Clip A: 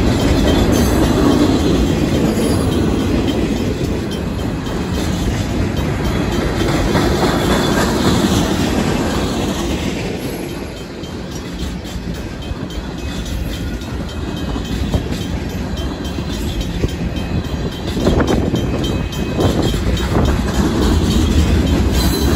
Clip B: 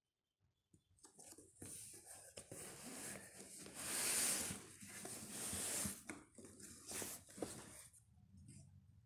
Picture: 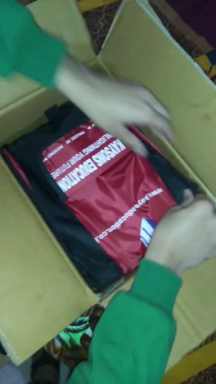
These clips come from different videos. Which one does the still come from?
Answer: B